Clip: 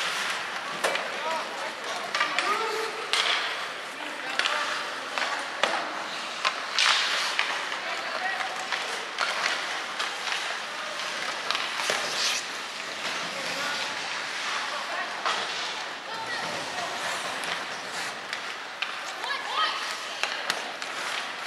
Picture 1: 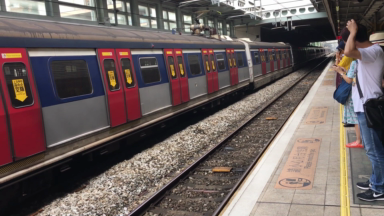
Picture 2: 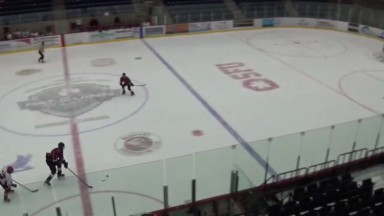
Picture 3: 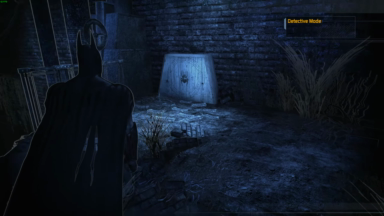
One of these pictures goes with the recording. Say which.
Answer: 2